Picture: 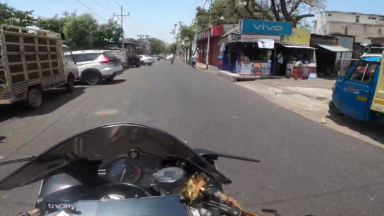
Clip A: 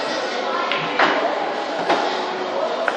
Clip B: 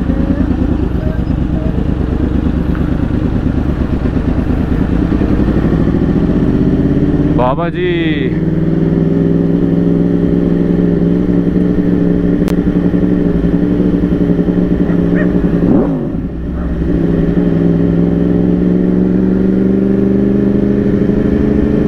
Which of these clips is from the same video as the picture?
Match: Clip B